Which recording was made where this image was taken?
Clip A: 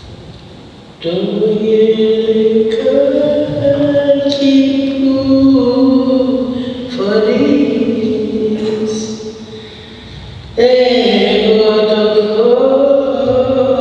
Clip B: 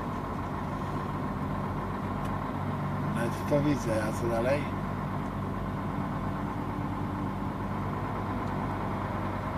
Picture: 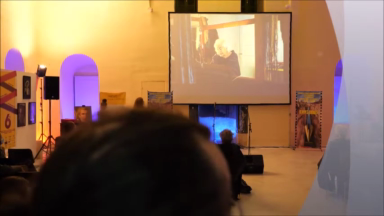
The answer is A